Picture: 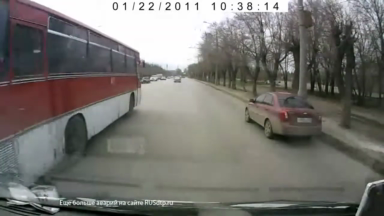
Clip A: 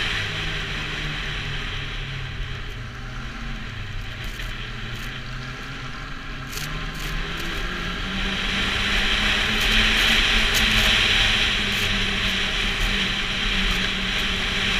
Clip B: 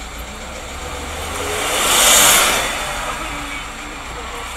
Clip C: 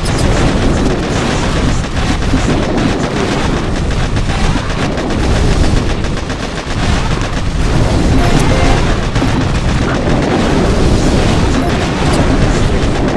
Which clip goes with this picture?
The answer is B